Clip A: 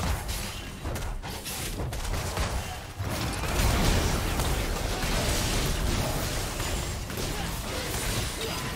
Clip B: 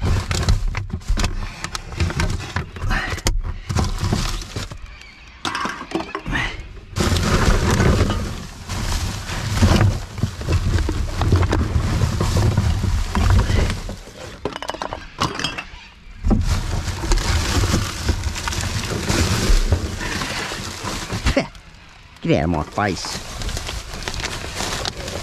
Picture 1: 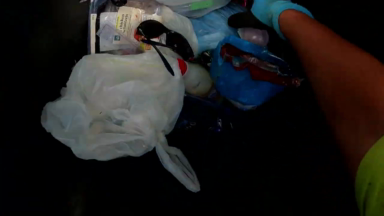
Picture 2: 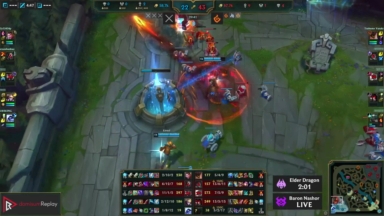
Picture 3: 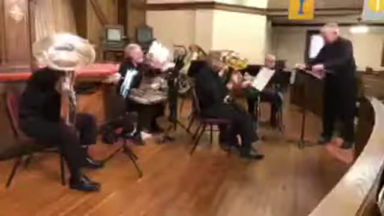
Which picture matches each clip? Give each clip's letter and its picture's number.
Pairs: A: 2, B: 1